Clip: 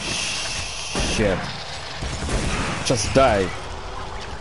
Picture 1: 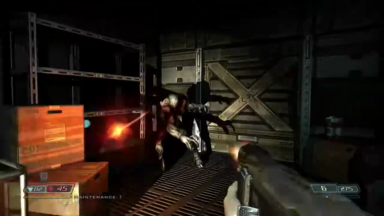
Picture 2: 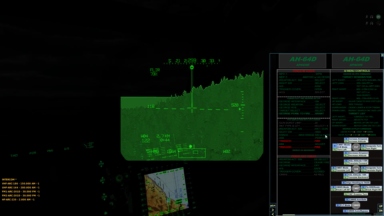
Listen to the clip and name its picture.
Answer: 1